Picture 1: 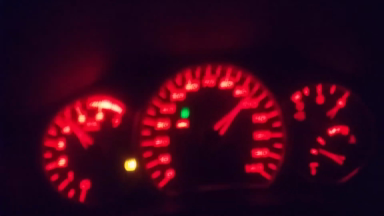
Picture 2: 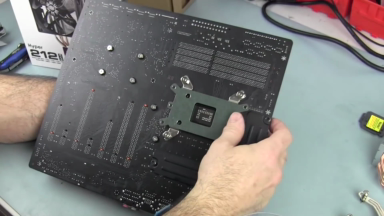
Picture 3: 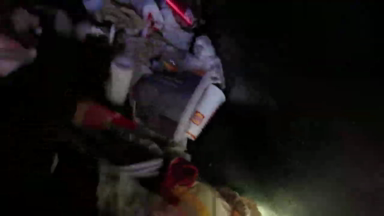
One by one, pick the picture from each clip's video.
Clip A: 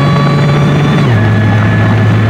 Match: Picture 1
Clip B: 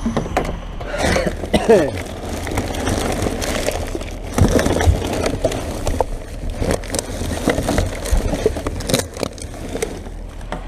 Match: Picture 3